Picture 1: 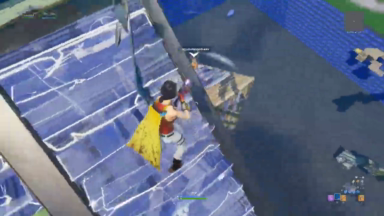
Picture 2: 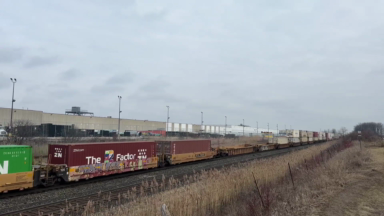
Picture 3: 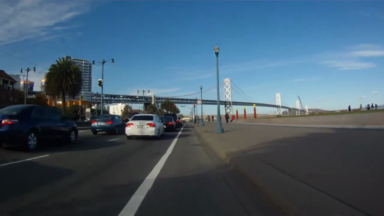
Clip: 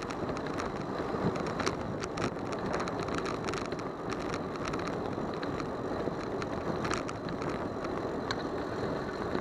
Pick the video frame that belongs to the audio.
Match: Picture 3